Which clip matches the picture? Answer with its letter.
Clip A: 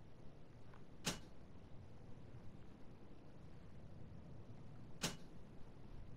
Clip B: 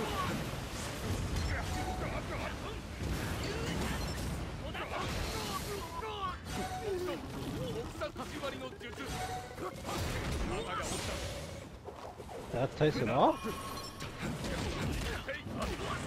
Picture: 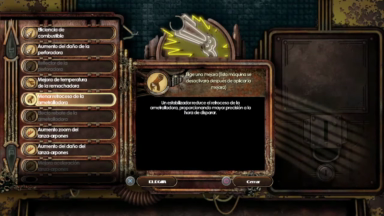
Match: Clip A